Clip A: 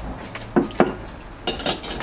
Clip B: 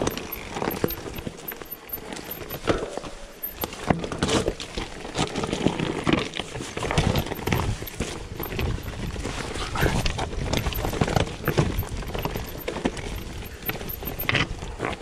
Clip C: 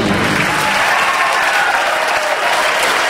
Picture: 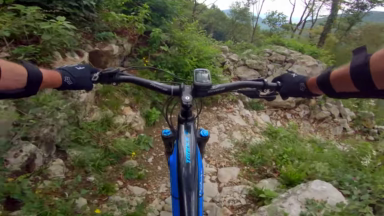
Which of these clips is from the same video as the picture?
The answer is B